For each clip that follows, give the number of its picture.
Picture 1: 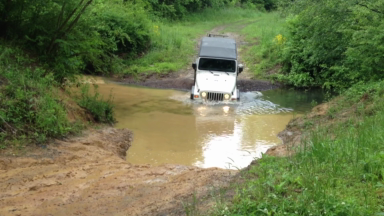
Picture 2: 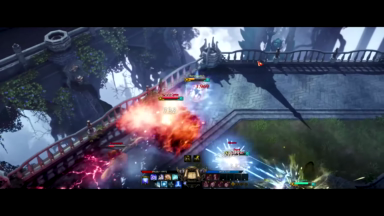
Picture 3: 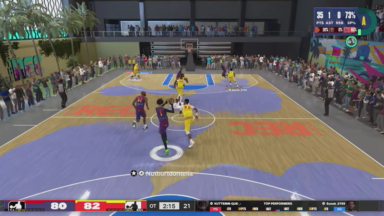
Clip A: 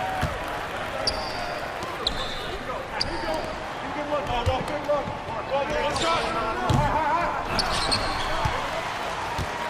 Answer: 3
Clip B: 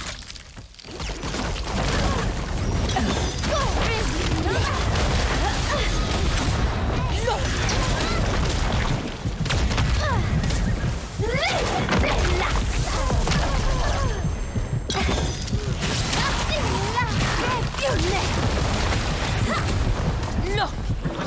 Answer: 2